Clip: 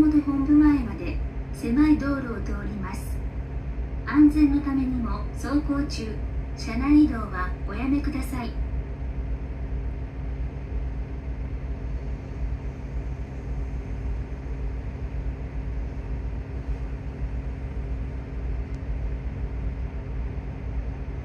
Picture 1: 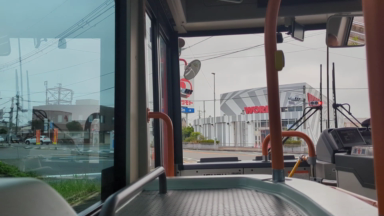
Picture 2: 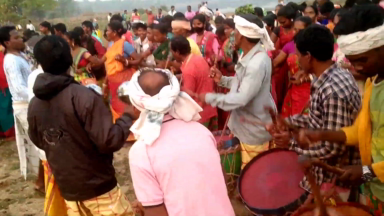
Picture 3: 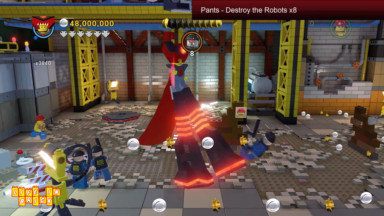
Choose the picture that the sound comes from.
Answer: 1